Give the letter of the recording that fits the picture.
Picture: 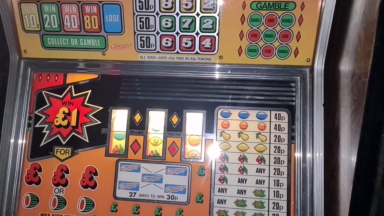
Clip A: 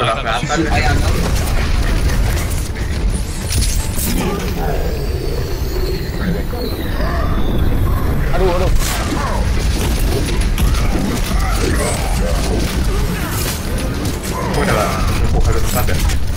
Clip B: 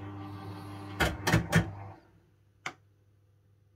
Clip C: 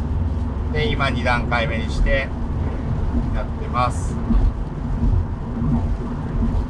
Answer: B